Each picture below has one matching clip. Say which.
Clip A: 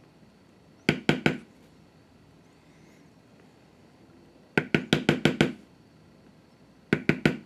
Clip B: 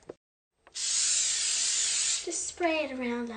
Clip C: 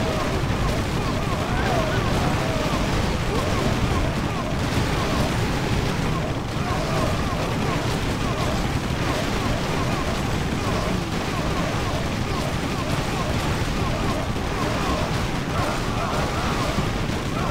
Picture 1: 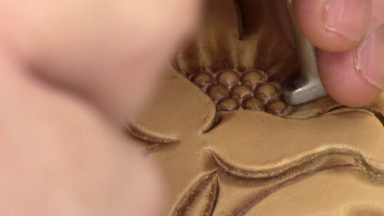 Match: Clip A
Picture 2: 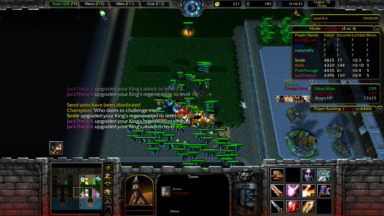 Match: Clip C